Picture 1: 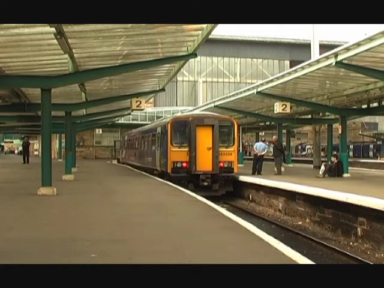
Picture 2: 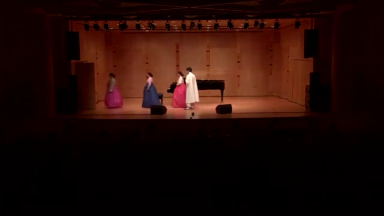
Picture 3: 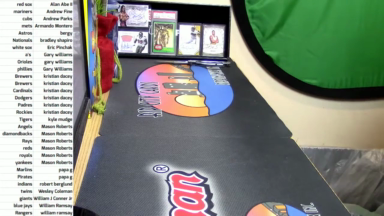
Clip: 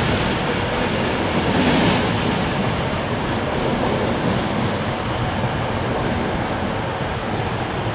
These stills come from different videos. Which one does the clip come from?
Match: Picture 1